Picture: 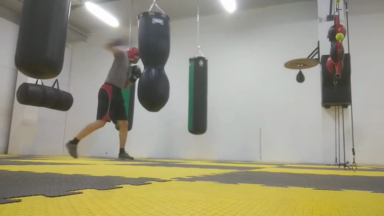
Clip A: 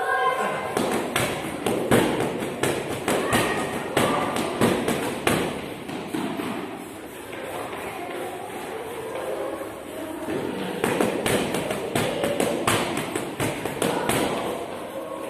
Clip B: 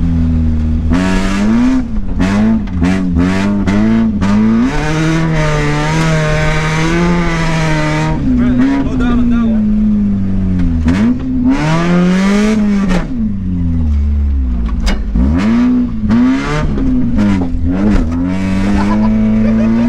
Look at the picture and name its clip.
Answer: A